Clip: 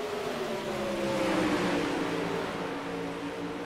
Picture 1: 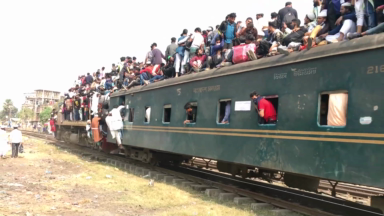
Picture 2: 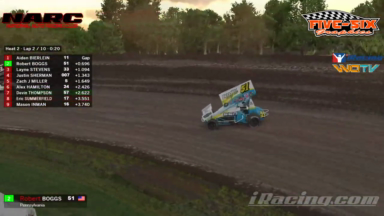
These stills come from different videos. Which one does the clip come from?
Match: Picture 2